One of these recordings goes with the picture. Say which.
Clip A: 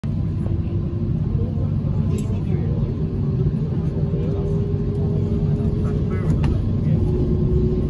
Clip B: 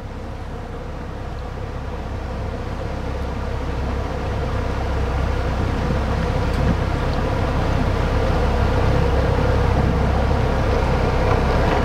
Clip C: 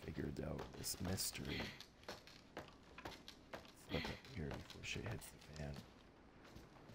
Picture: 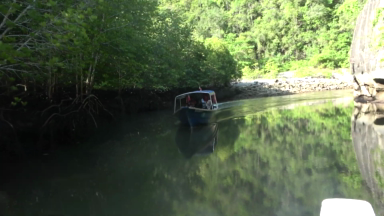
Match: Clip B